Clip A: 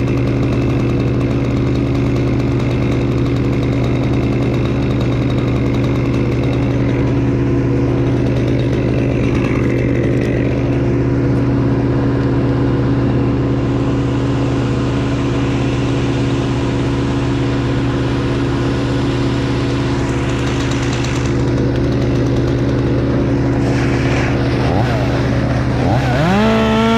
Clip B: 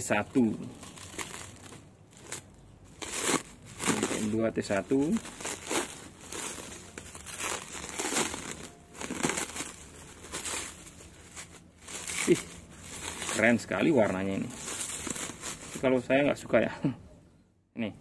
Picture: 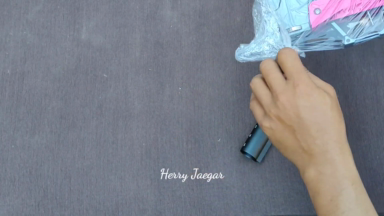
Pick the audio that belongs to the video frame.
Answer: B